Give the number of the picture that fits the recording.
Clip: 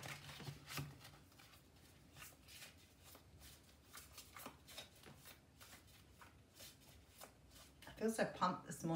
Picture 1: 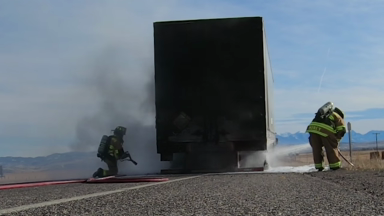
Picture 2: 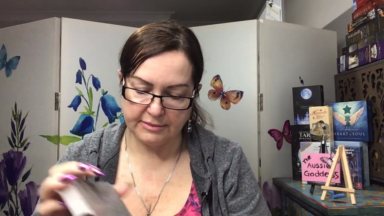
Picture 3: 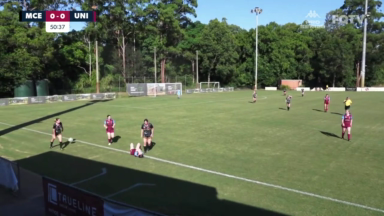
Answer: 2